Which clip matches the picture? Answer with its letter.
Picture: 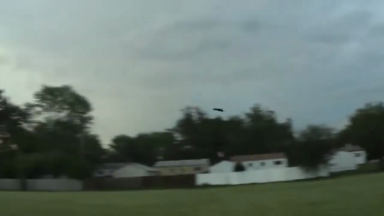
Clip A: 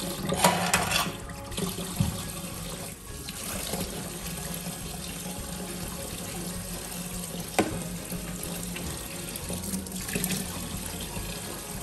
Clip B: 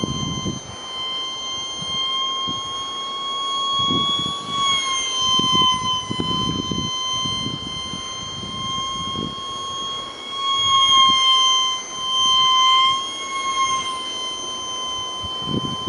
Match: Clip B